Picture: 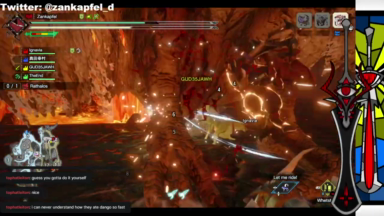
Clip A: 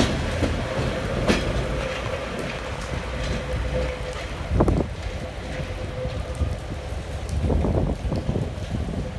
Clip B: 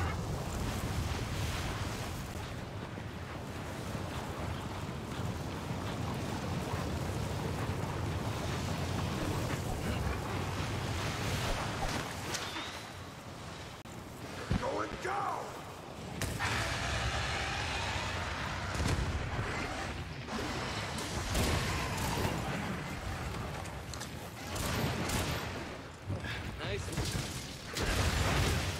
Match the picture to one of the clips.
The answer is B